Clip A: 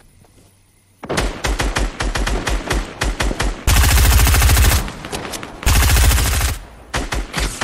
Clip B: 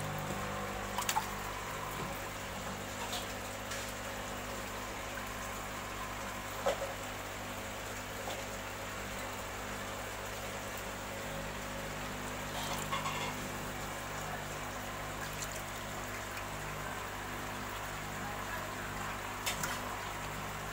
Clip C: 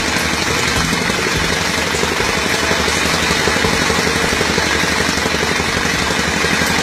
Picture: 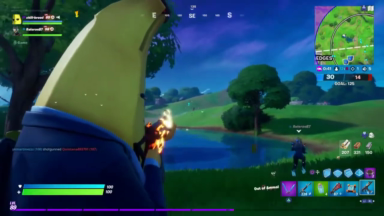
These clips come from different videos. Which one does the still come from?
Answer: A